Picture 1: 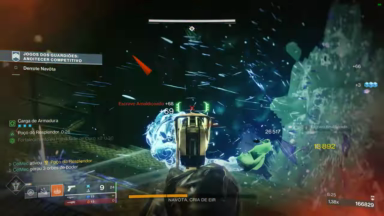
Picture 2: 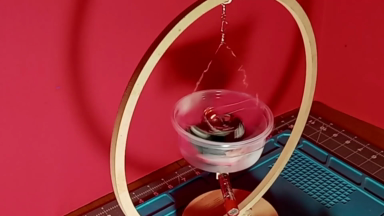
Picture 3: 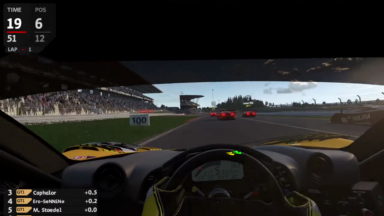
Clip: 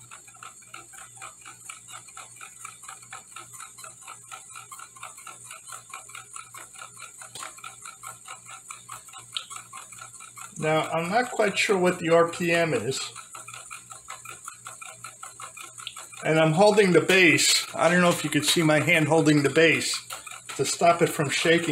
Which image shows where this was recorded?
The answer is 2